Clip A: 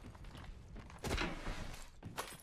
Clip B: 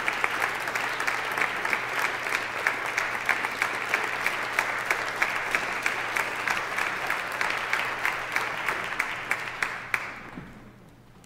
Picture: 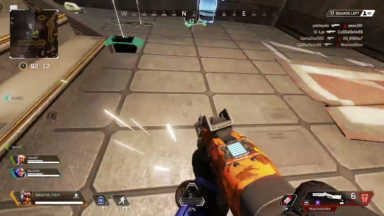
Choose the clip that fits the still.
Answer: A